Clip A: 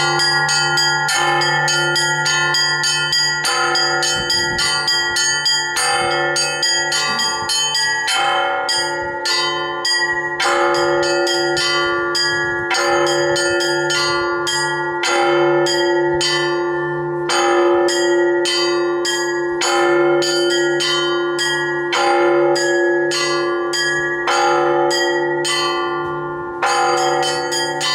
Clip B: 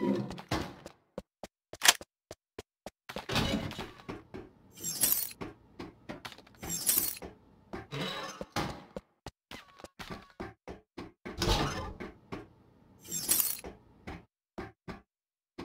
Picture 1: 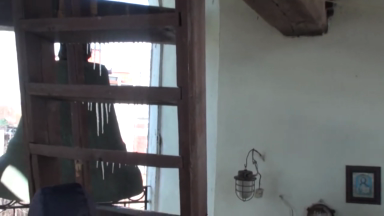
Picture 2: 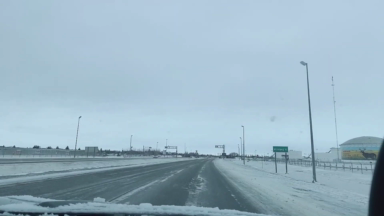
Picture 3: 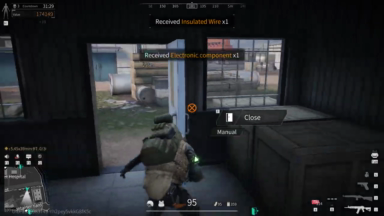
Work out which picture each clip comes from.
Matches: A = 1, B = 3